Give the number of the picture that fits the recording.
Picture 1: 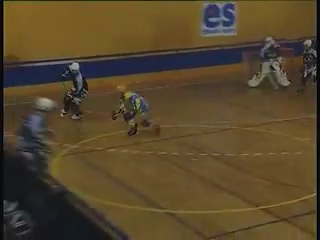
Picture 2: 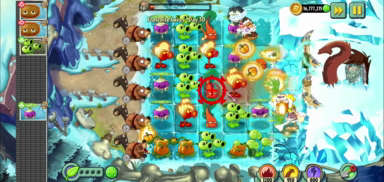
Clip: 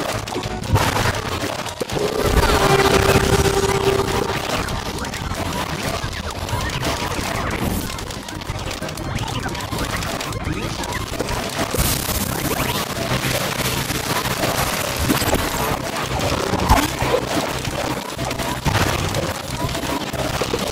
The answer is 2